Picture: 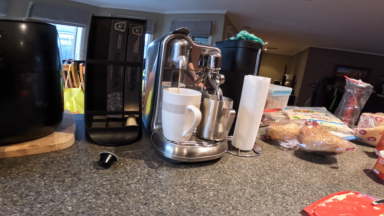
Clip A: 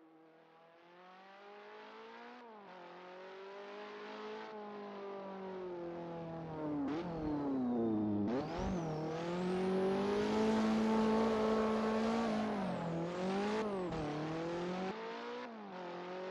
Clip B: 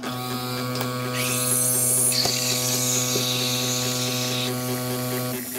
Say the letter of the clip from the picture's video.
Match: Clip B